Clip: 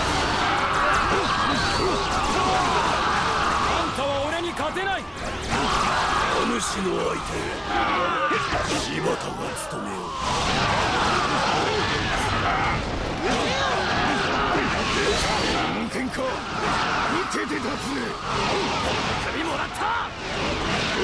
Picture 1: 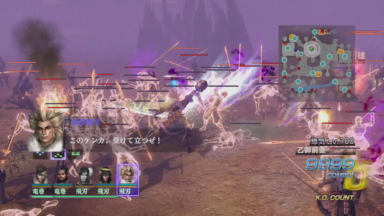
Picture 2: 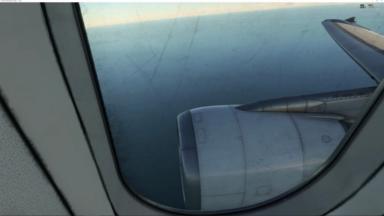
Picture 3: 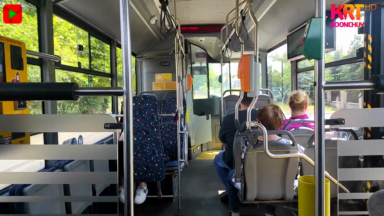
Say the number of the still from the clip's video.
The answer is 1